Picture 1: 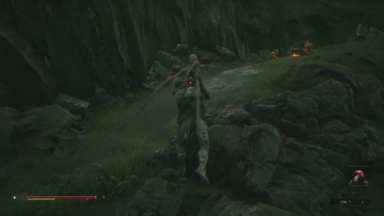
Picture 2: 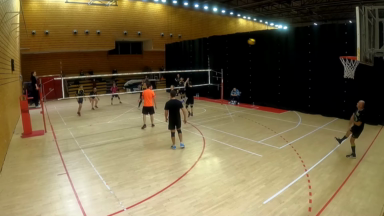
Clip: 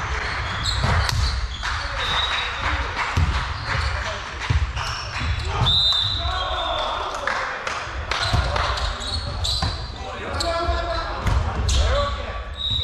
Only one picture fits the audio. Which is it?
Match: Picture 2